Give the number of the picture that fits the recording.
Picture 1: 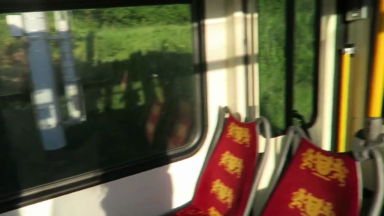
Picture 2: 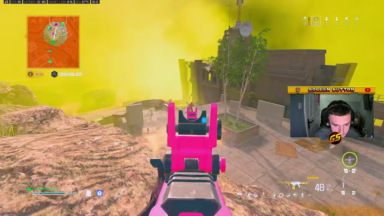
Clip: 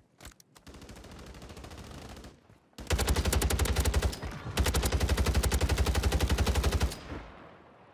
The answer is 2